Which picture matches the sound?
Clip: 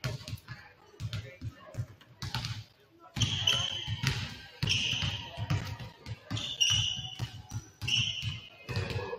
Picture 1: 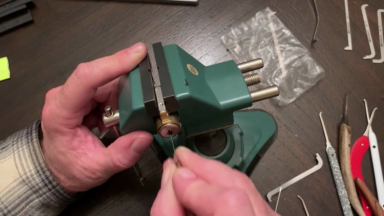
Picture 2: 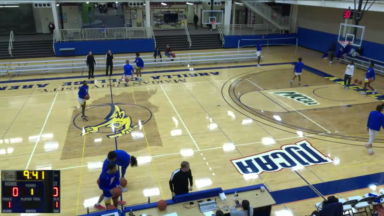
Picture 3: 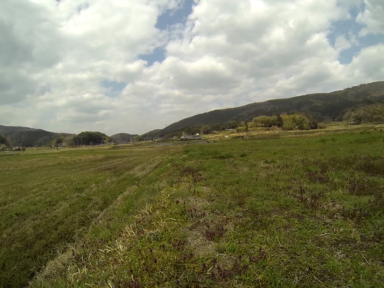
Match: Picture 2